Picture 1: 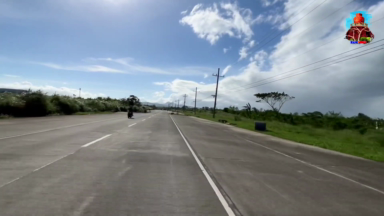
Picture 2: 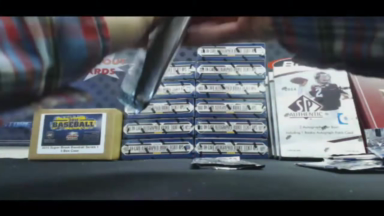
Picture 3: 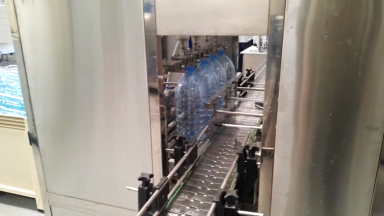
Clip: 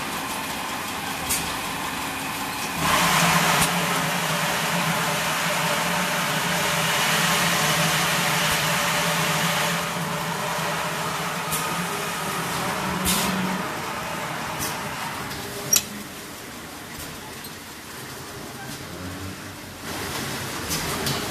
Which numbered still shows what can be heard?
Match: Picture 3